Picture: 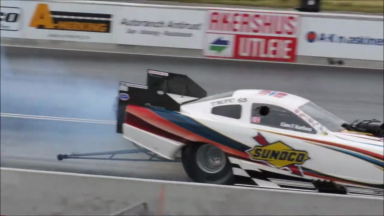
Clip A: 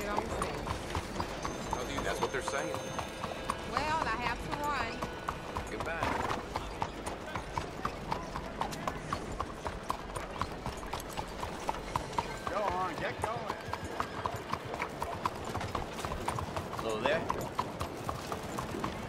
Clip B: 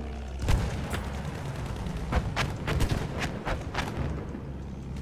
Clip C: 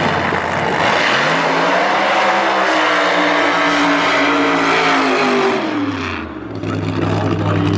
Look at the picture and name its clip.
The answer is C